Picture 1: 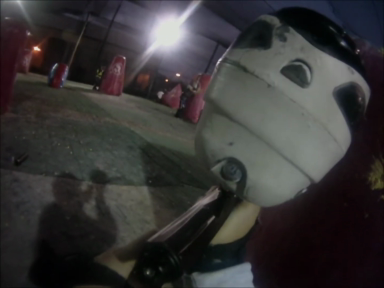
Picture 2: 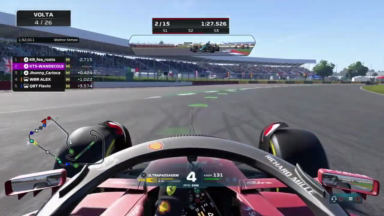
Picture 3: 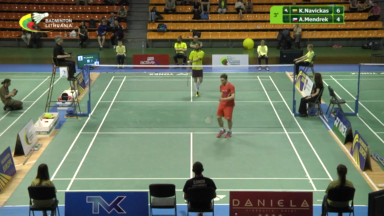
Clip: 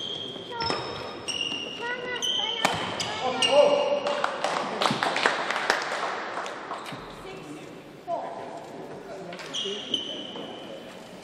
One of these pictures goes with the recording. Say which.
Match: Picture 3